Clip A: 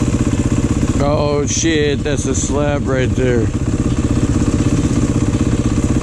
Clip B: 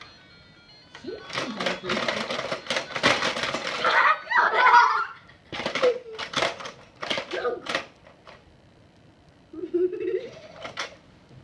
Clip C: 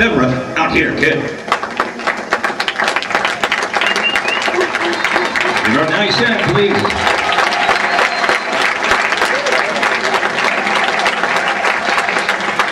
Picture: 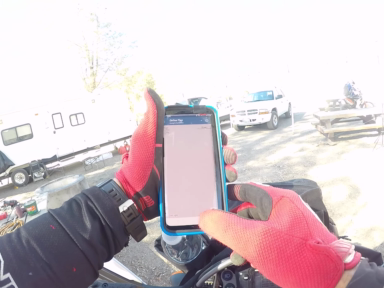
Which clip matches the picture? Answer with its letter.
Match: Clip A